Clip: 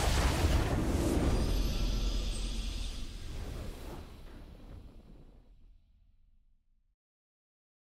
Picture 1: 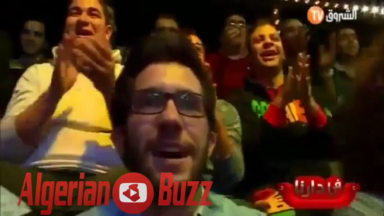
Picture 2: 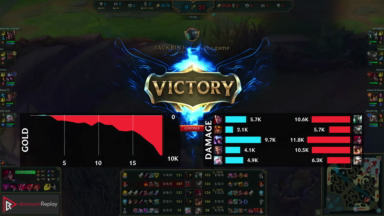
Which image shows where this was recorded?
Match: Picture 2